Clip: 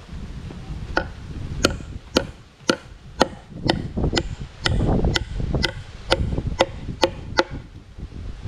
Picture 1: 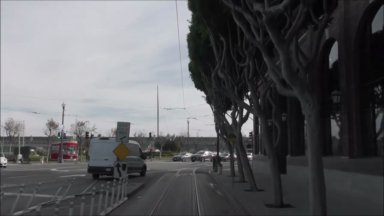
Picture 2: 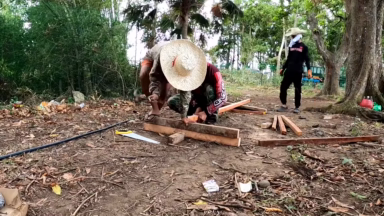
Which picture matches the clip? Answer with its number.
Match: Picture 2